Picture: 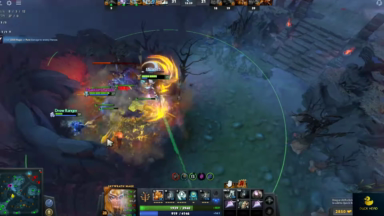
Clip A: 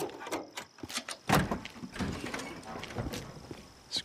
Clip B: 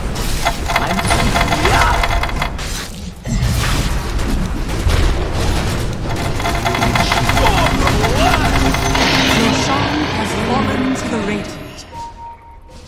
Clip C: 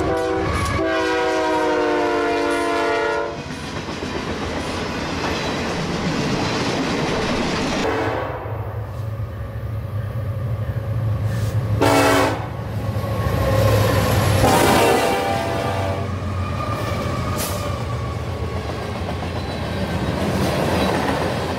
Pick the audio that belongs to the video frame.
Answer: B